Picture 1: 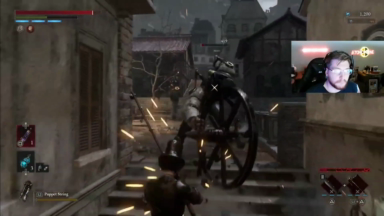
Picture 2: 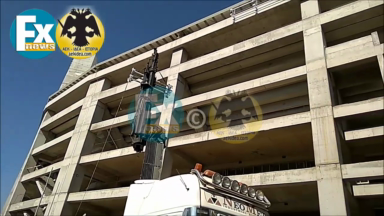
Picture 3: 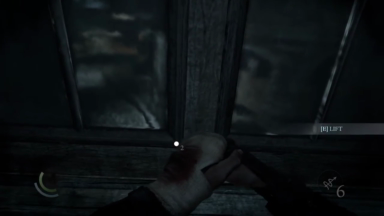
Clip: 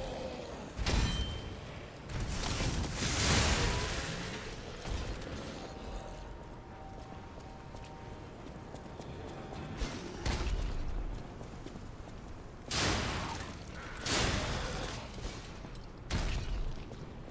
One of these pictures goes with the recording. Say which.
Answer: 1